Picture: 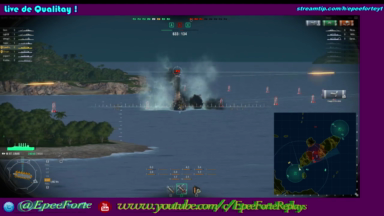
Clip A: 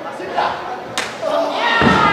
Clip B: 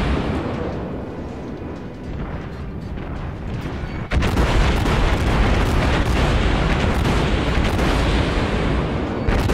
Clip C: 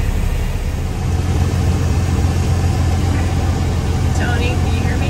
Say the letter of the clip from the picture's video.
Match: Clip B